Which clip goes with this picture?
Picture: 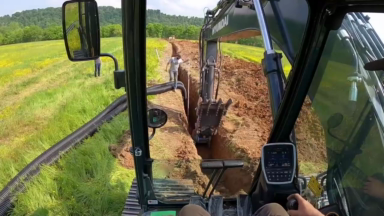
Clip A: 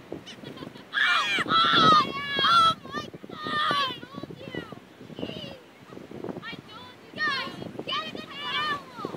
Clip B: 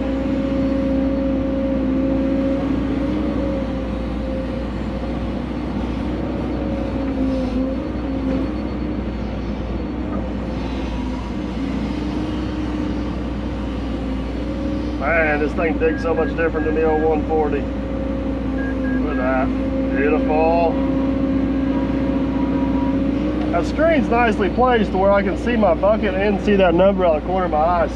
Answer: B